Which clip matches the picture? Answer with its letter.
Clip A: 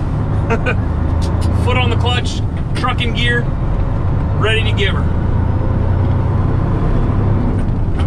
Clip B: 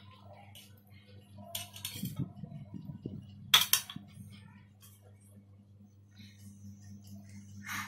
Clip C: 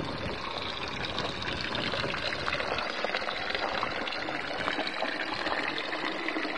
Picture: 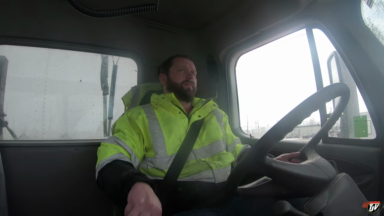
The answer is A